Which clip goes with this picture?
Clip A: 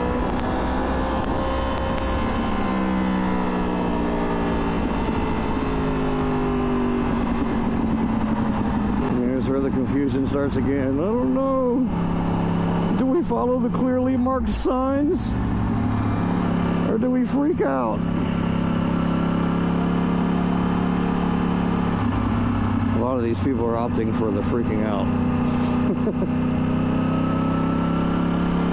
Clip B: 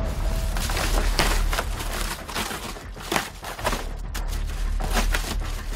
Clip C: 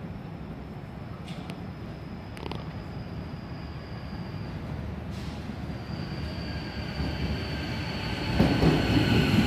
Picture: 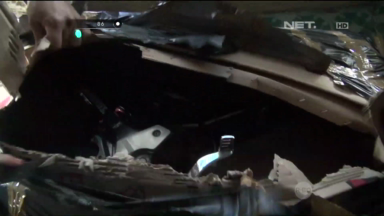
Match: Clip B